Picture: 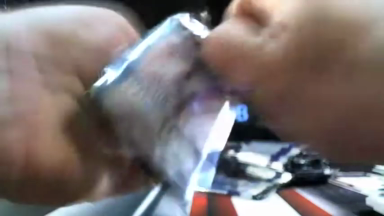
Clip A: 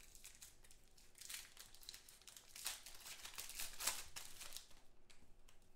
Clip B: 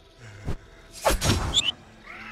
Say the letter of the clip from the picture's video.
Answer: A